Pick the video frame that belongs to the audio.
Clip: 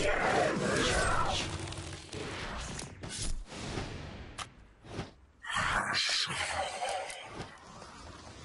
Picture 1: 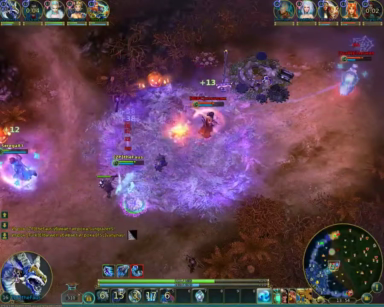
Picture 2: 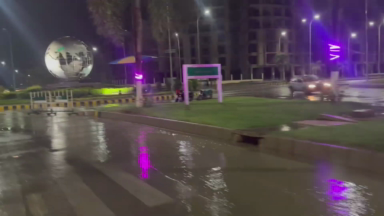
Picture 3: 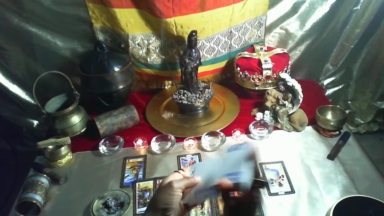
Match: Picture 1